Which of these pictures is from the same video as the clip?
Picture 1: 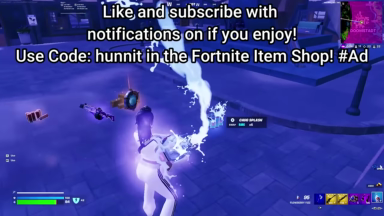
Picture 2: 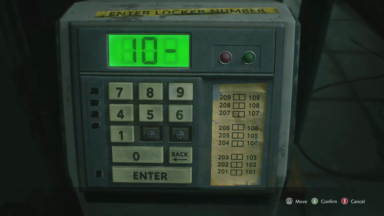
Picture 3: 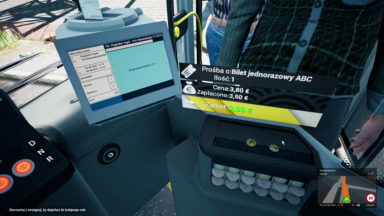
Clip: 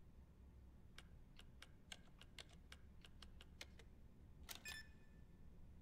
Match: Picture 2